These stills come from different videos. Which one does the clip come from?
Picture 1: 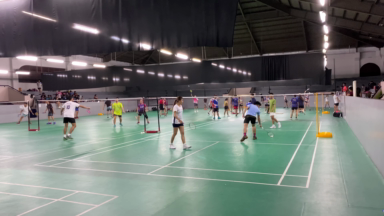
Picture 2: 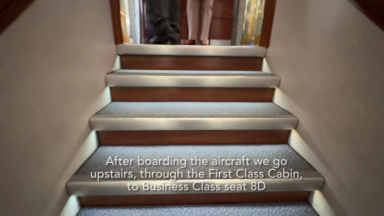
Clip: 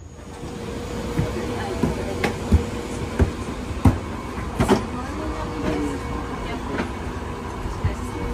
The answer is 2